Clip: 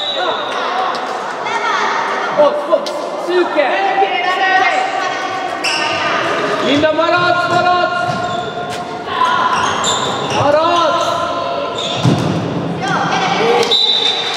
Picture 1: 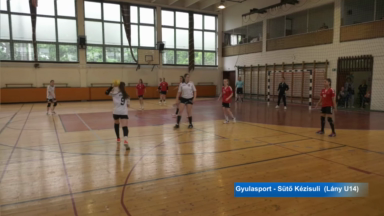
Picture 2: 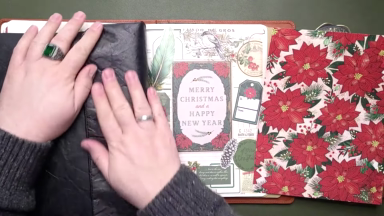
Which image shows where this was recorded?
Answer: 1